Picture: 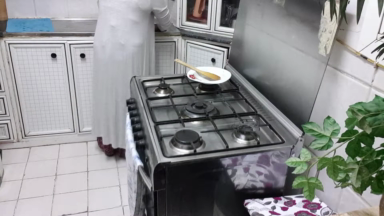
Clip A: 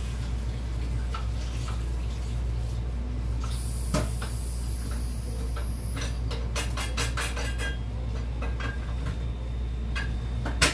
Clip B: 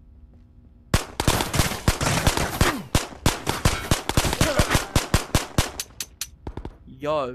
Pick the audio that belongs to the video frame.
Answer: A